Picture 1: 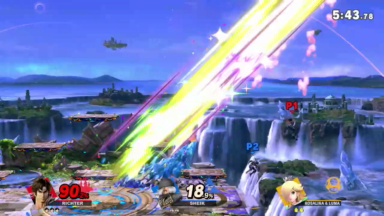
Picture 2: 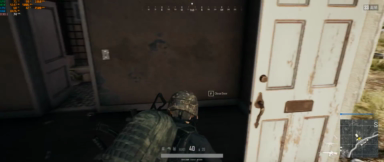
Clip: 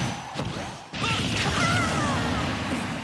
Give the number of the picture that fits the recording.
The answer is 1